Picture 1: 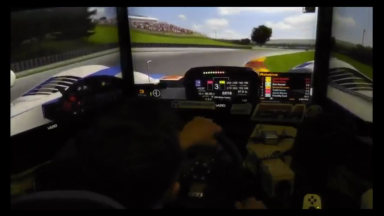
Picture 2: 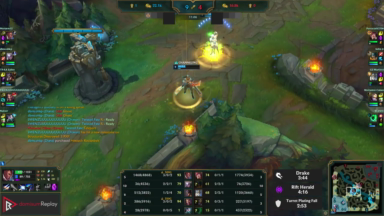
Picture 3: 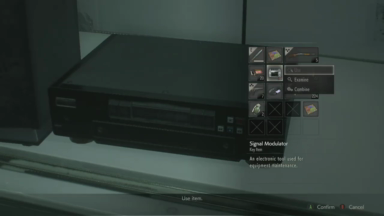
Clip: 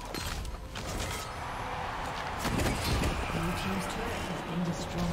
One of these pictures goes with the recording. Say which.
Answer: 2